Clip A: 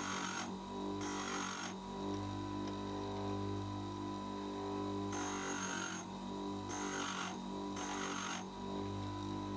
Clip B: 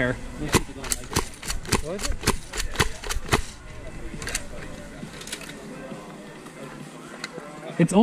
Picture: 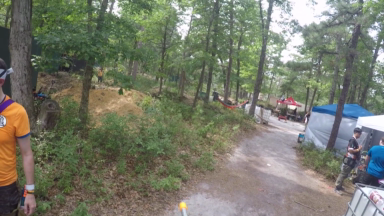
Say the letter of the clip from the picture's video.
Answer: B